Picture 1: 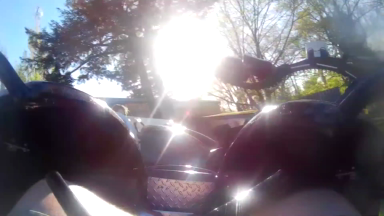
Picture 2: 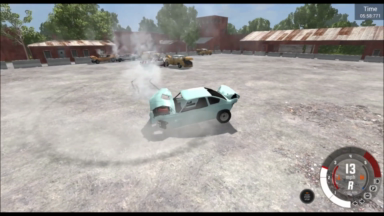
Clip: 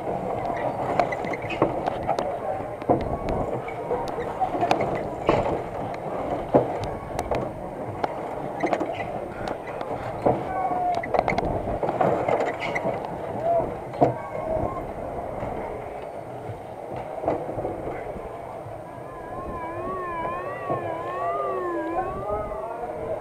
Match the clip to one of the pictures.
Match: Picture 1